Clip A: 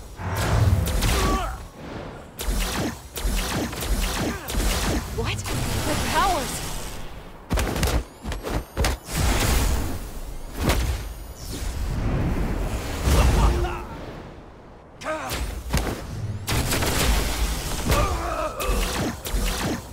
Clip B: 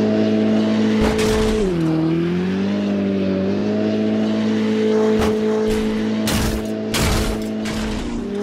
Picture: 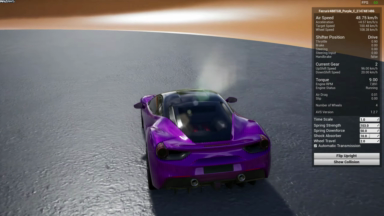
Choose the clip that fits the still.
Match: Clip B